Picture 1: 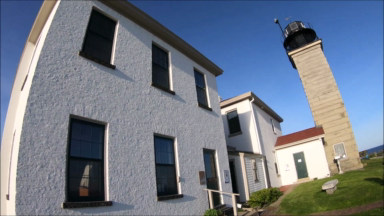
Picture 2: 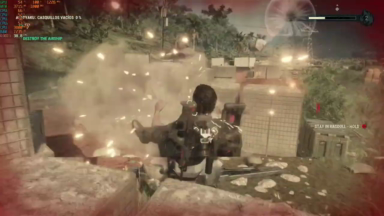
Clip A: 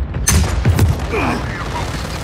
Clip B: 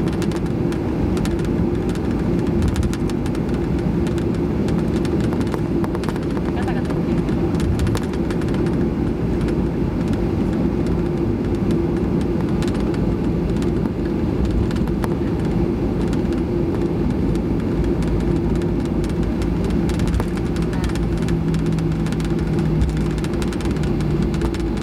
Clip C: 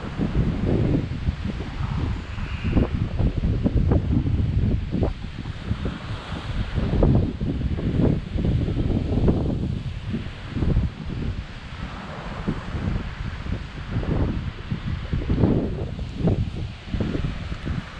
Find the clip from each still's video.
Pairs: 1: C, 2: A